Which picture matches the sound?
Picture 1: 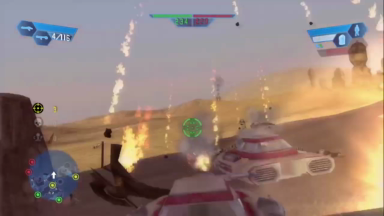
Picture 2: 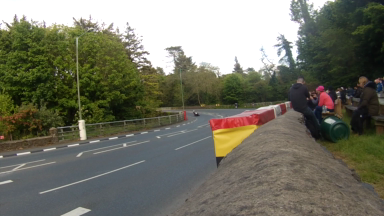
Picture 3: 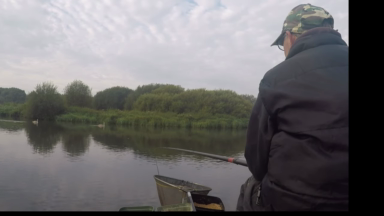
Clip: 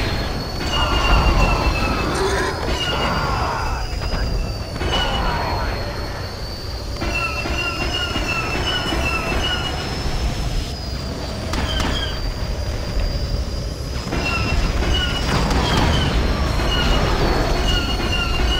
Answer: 1